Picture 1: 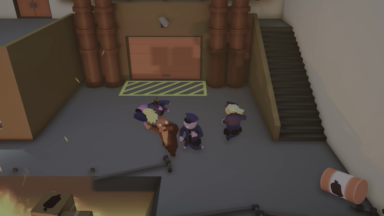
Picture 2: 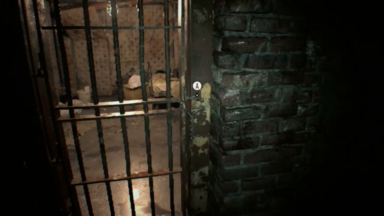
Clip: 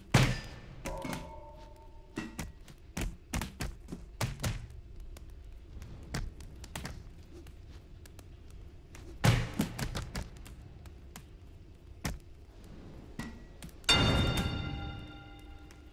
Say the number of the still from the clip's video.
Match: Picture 1